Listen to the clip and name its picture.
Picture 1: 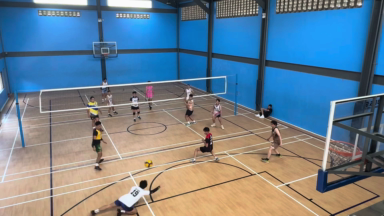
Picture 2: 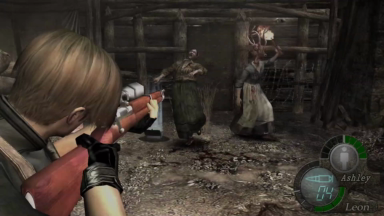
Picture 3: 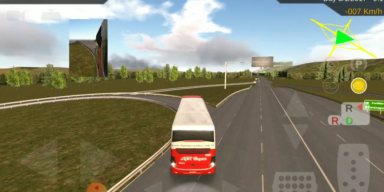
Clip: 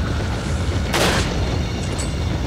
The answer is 2